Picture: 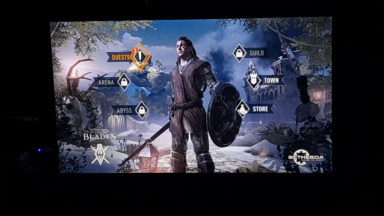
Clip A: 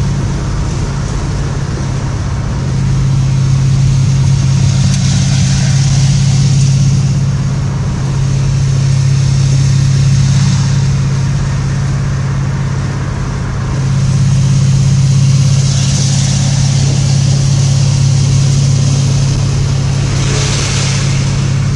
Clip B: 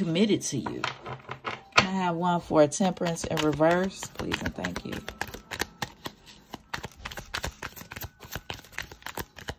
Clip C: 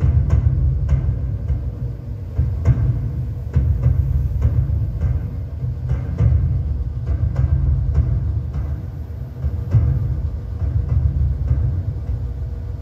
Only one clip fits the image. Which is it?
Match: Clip C